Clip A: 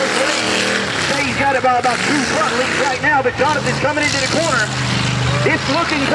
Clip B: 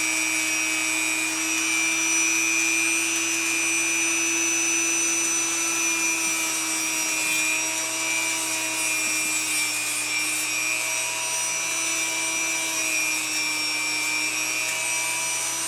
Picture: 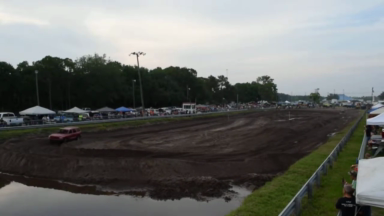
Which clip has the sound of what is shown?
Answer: A